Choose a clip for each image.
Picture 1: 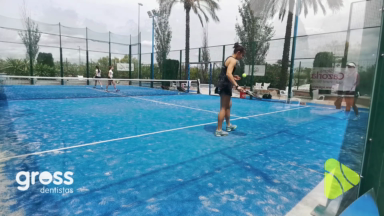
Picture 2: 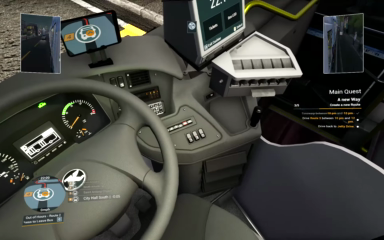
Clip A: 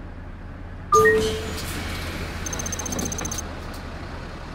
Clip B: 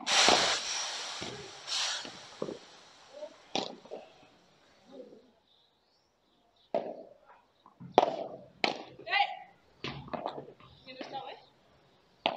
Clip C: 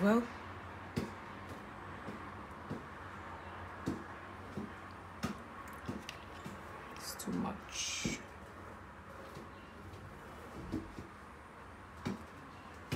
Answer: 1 B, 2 A